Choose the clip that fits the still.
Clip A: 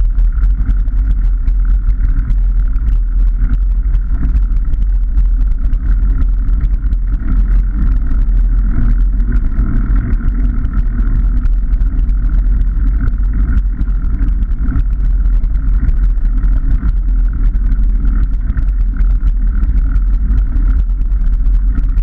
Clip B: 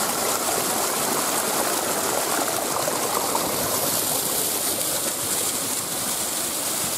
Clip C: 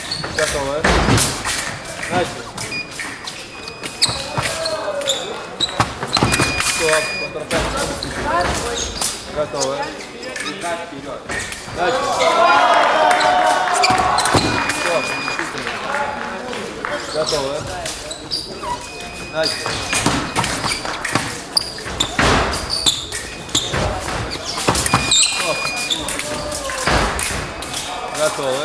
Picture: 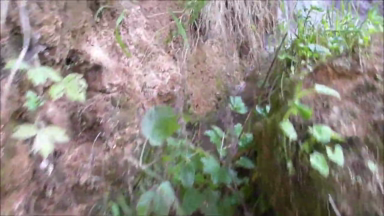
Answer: B